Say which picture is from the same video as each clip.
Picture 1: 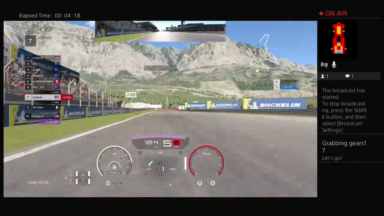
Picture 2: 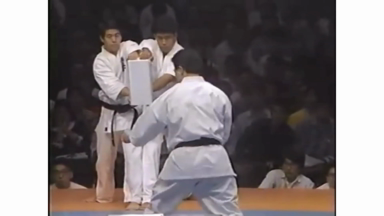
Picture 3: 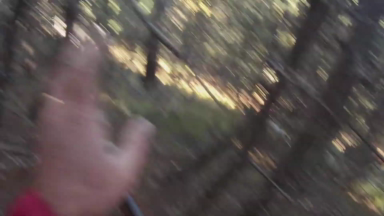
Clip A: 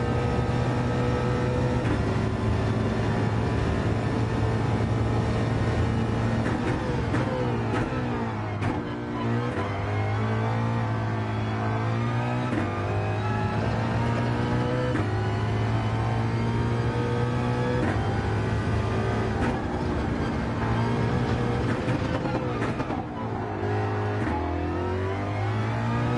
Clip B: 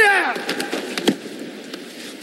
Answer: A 1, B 2